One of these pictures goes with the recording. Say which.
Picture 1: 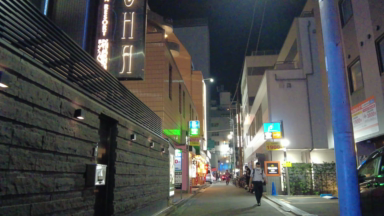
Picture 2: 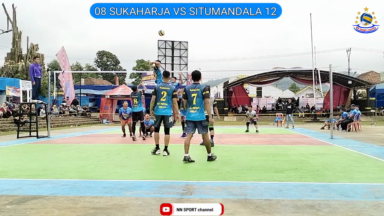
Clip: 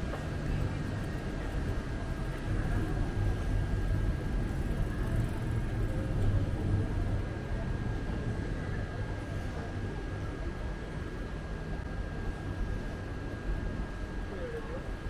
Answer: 1